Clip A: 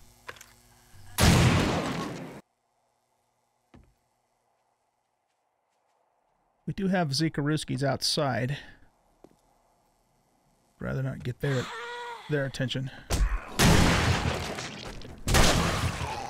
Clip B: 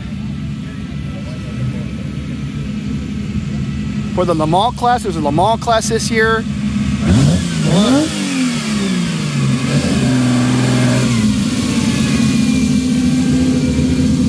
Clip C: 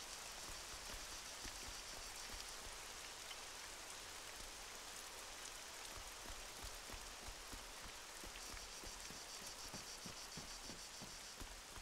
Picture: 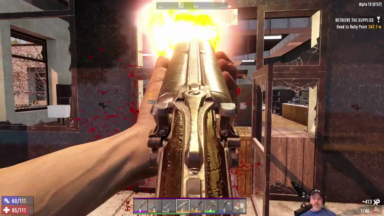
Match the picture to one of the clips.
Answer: A